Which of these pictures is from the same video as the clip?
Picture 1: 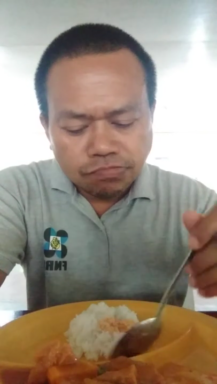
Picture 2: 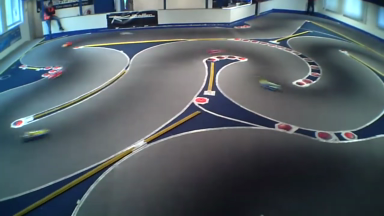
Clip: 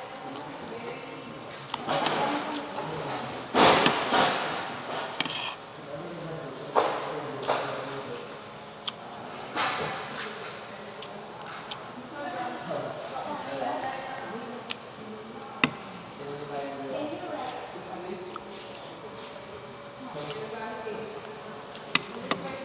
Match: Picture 1